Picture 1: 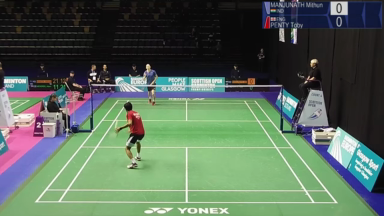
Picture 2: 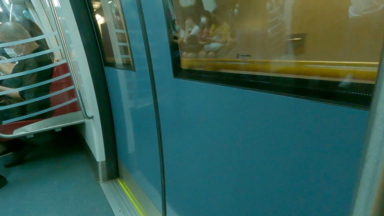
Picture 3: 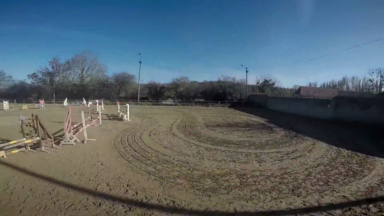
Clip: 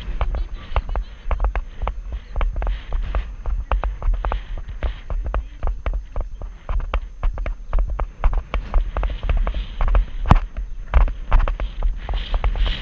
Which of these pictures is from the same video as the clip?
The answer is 3